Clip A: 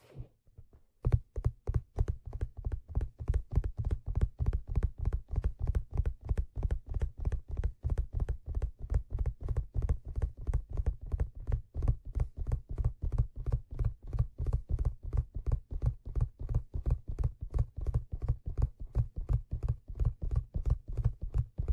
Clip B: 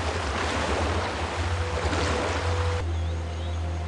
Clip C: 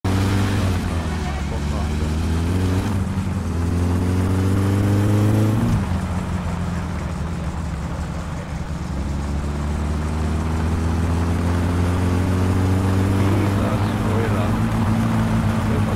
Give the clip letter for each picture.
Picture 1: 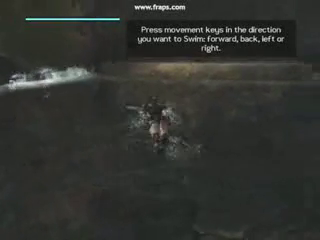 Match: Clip B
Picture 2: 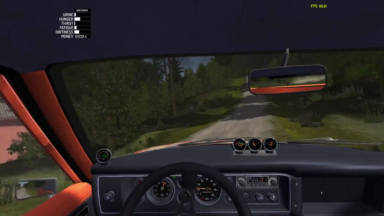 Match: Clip C